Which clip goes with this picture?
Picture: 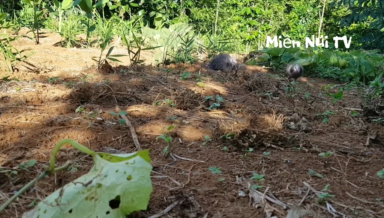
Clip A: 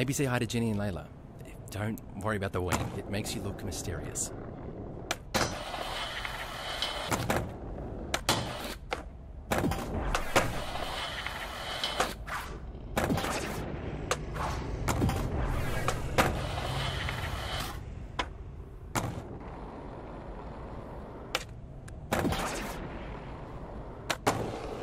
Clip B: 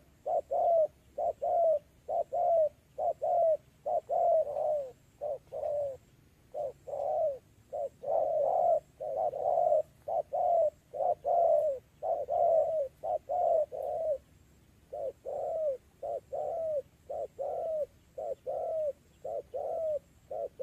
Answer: B